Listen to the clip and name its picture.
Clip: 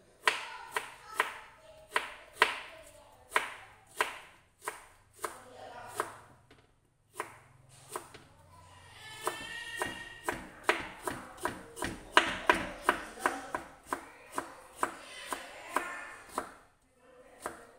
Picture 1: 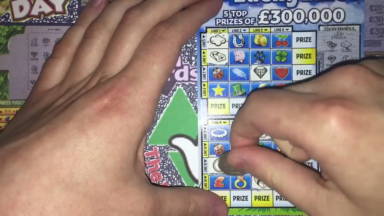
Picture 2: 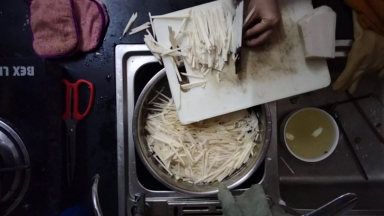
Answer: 2